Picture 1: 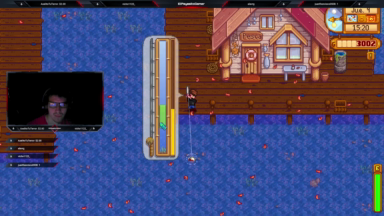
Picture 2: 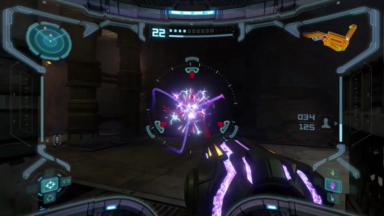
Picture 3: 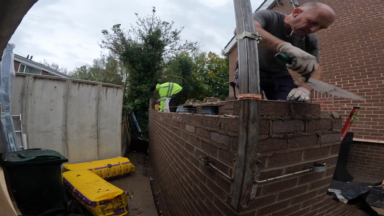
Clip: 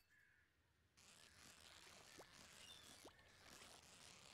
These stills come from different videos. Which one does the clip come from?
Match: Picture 1